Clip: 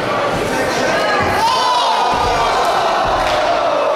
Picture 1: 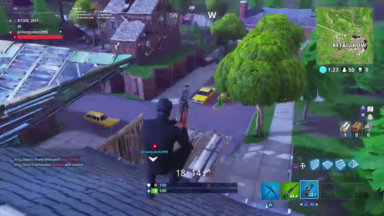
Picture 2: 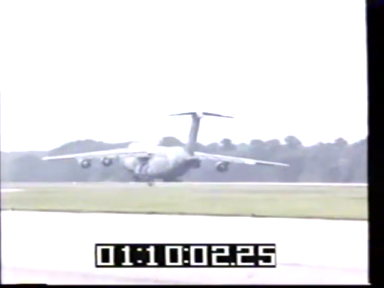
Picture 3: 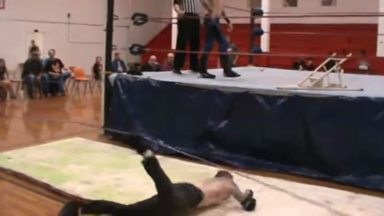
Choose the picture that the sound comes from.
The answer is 3